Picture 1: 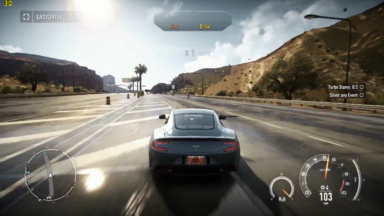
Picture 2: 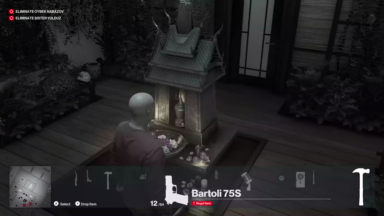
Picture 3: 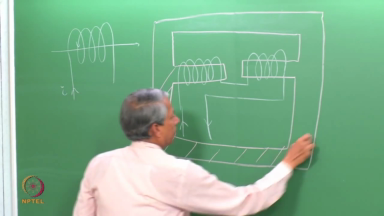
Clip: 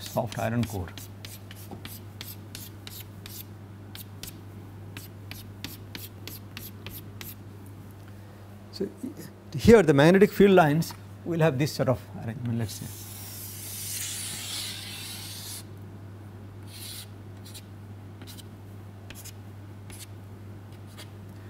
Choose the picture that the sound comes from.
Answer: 3